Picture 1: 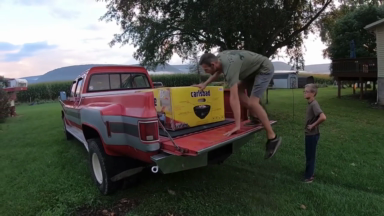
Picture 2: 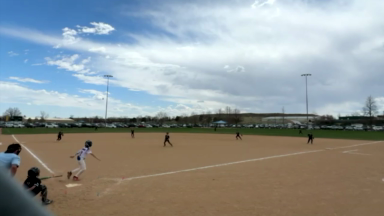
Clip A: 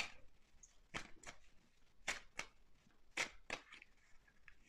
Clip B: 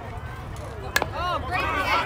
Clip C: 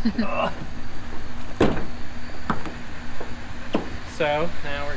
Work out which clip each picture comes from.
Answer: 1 C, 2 B